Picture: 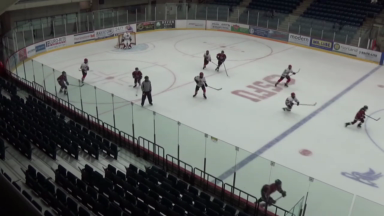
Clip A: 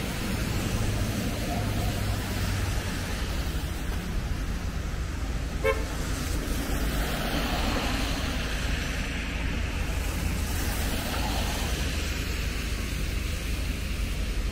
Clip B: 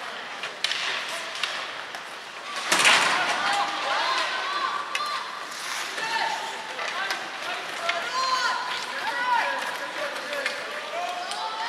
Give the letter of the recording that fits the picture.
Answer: B